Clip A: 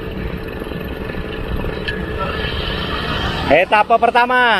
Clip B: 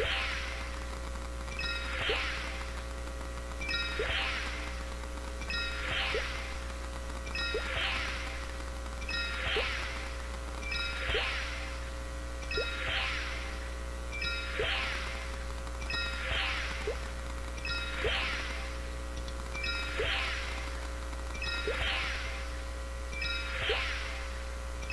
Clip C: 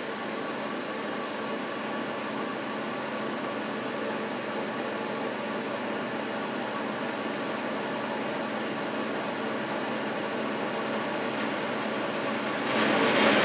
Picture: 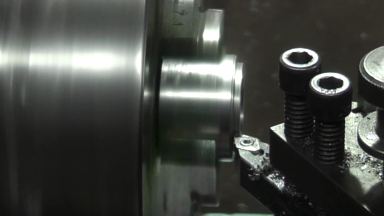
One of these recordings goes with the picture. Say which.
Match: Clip C